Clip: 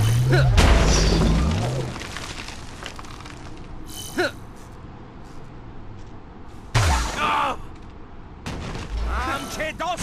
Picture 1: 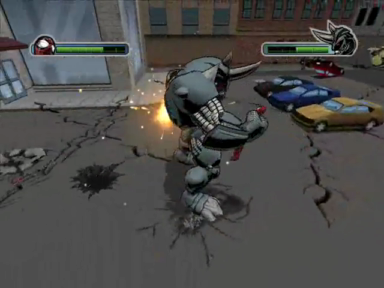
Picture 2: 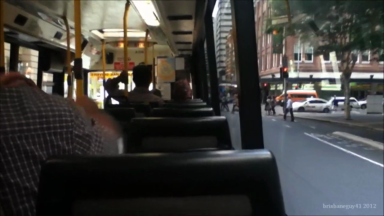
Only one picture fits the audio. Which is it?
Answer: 1